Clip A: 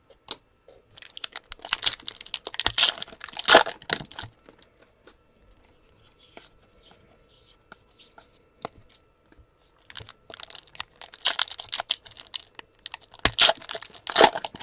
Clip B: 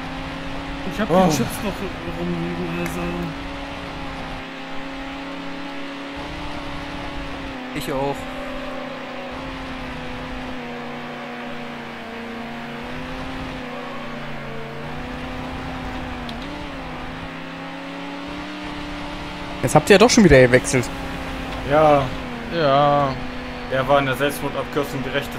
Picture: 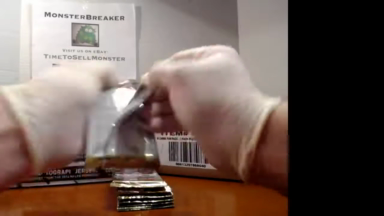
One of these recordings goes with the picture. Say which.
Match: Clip A